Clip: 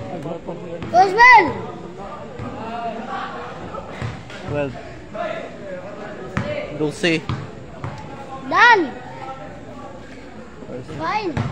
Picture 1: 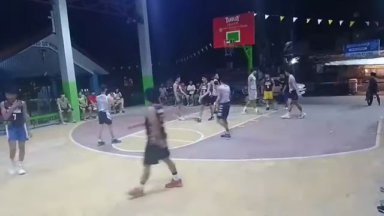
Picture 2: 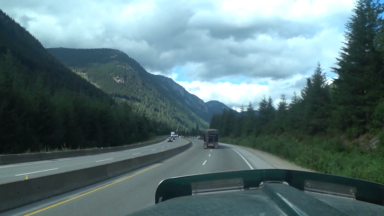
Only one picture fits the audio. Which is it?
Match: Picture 1